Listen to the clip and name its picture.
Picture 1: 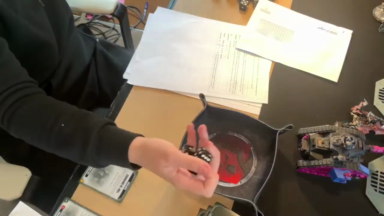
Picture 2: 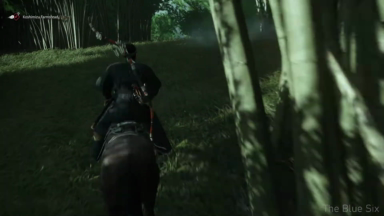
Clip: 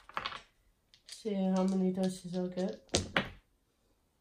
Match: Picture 1